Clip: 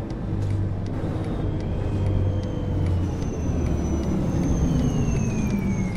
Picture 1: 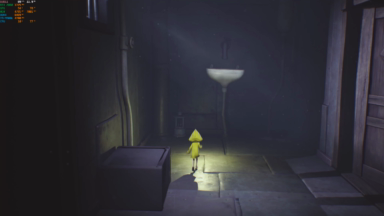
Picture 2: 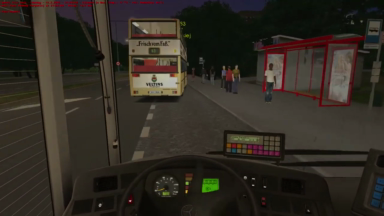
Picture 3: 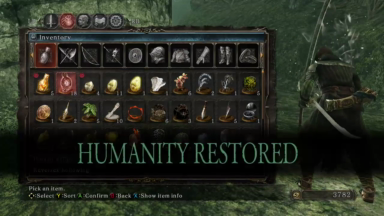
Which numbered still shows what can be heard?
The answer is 2